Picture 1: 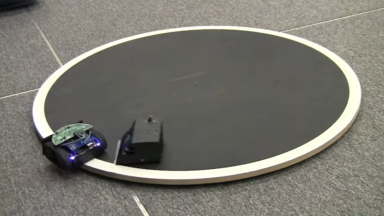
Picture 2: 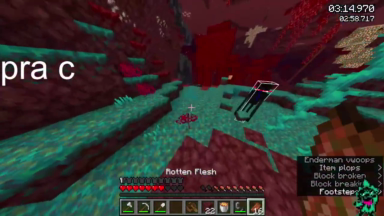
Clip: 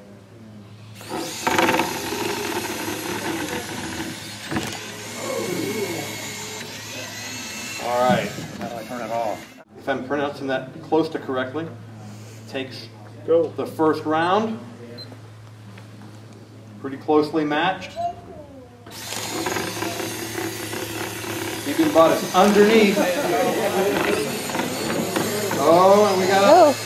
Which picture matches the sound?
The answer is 1